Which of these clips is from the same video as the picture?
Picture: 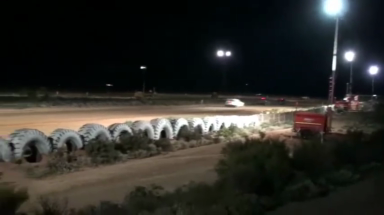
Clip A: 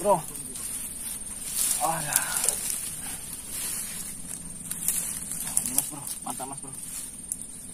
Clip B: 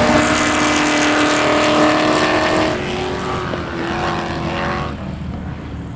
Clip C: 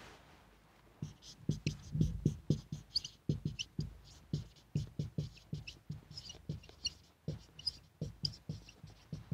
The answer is B